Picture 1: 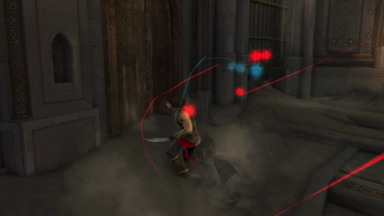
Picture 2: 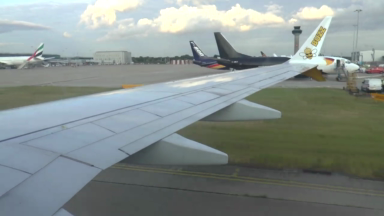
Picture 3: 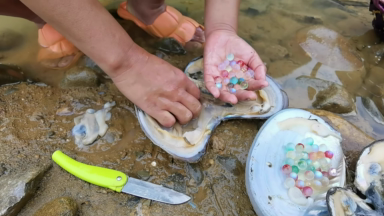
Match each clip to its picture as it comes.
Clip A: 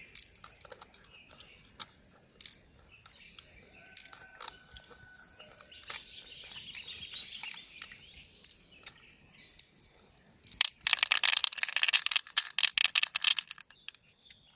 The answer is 3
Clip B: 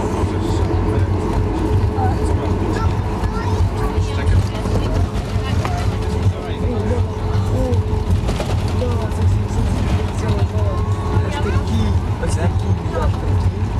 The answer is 2